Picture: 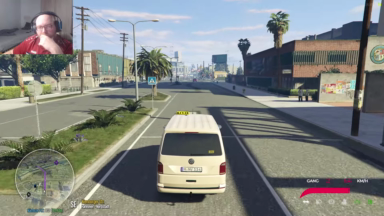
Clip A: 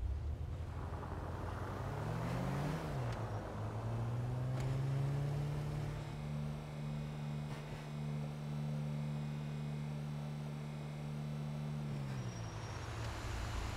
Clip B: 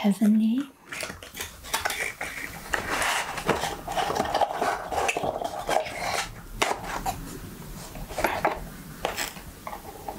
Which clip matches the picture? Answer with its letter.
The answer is A